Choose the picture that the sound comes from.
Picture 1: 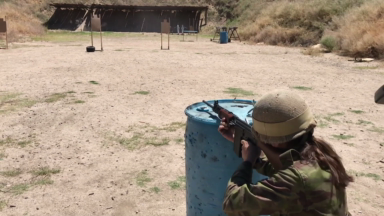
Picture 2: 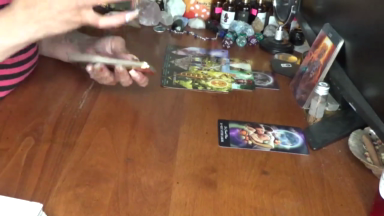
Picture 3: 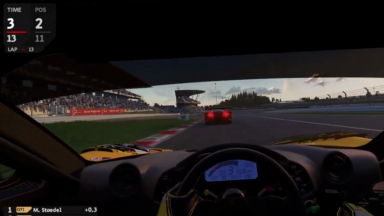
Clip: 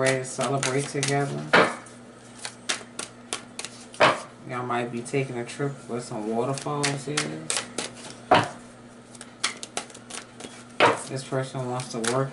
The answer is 2